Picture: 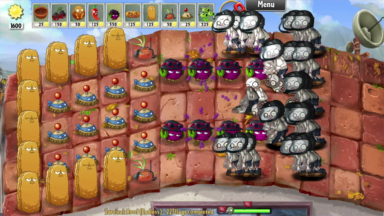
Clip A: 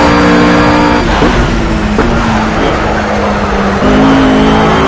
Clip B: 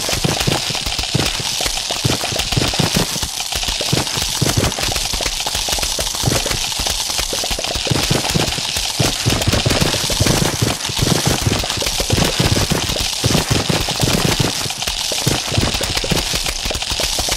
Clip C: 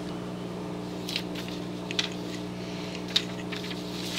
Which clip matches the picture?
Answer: B